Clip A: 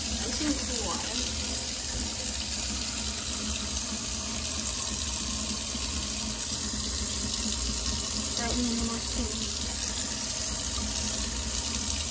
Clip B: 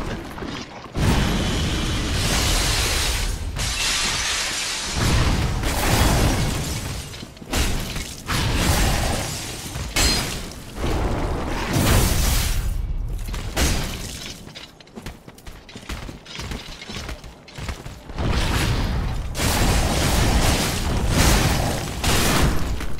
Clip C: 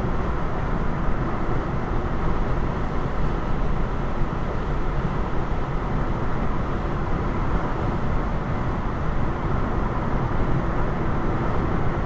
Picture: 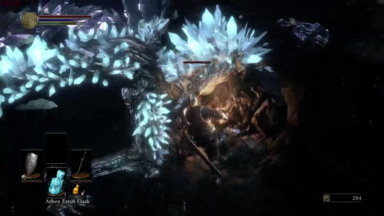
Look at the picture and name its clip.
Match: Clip B